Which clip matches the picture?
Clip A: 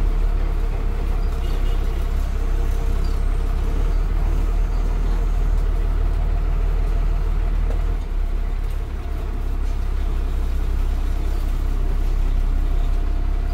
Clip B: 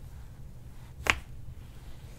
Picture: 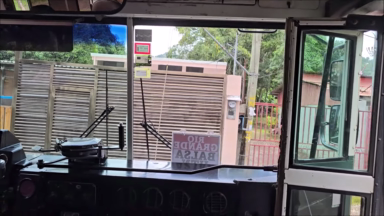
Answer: A